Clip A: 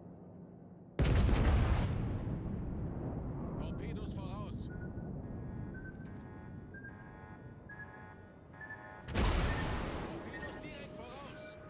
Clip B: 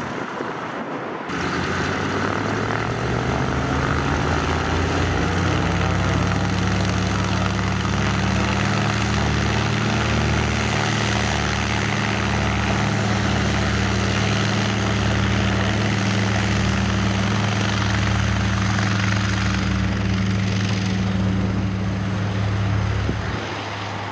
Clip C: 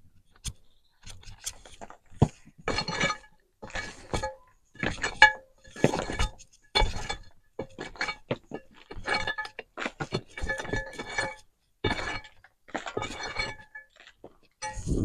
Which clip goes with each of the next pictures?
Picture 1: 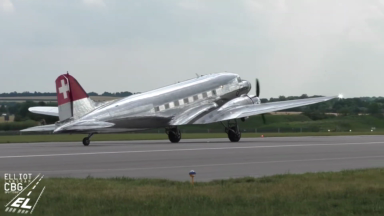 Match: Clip B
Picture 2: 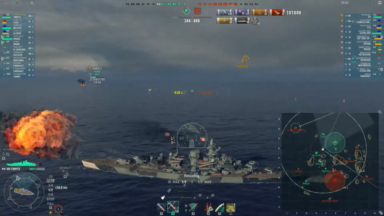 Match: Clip A